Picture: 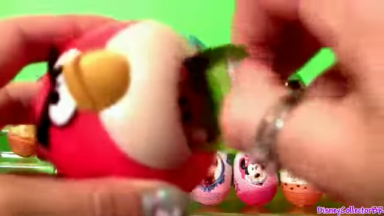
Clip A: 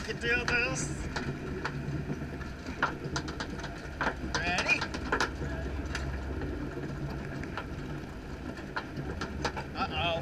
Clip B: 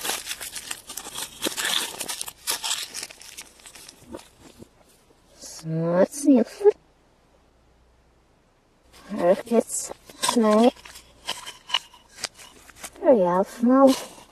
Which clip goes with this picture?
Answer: B